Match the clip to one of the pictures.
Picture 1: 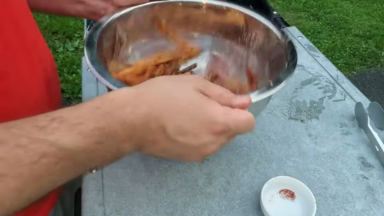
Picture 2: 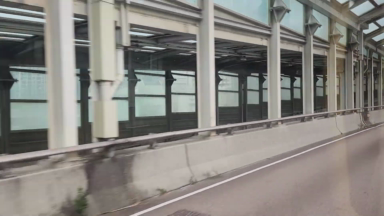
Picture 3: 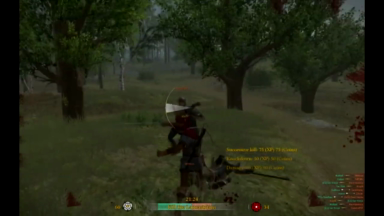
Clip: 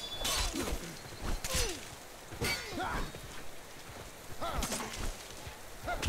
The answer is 3